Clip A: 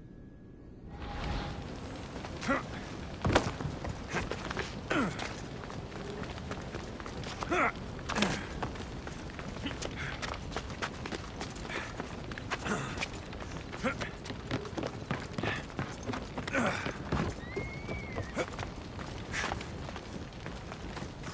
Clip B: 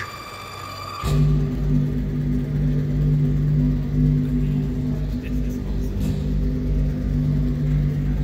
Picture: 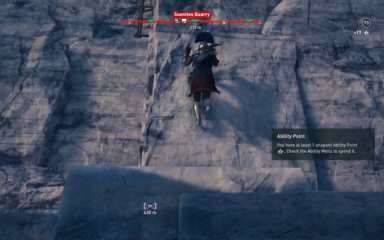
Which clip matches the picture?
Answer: A